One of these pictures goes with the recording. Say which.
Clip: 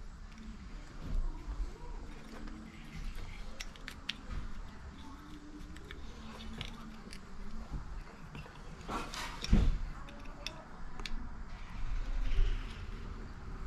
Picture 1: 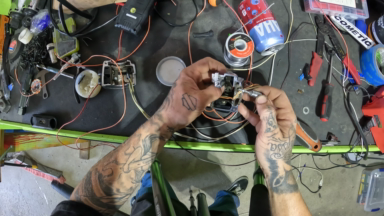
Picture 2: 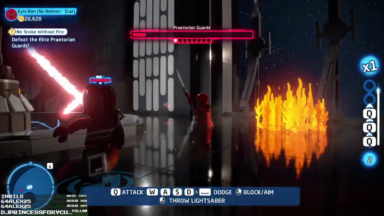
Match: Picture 1